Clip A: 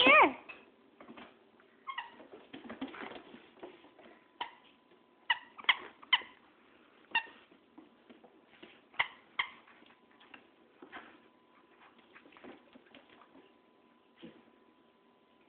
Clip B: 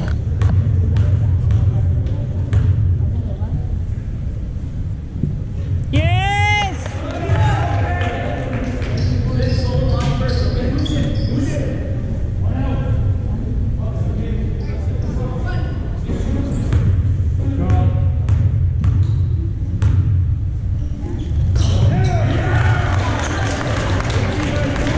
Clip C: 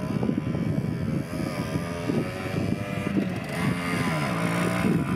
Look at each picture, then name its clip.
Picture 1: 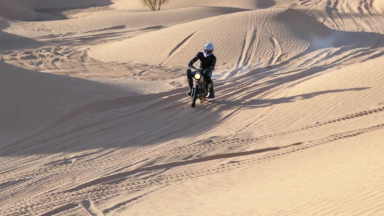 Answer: C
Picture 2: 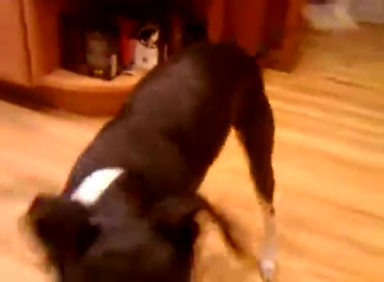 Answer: A